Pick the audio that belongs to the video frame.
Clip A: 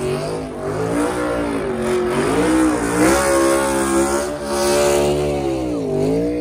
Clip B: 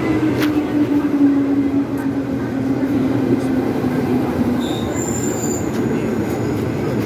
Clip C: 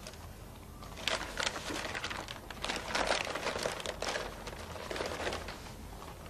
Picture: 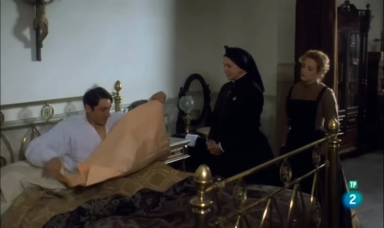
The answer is C